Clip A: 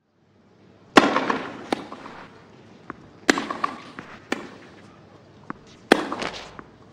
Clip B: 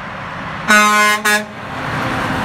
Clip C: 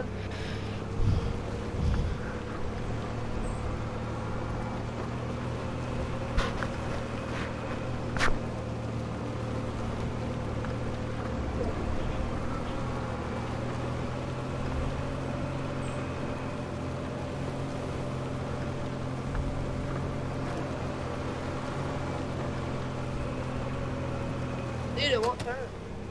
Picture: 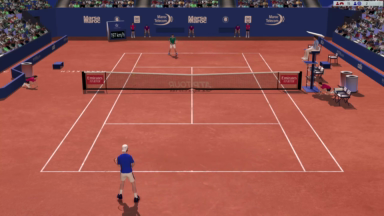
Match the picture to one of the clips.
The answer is A